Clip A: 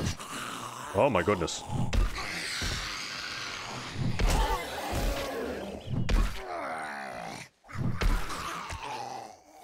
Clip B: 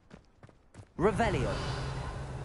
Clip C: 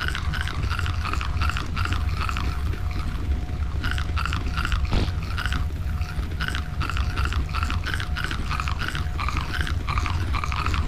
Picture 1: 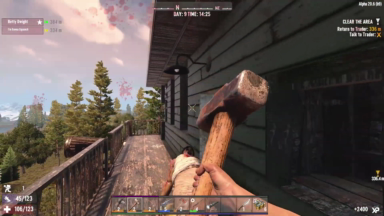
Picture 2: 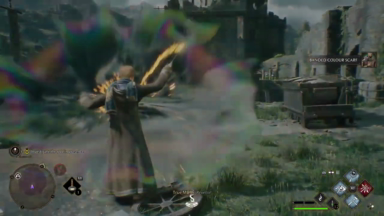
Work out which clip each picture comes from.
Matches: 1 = A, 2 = B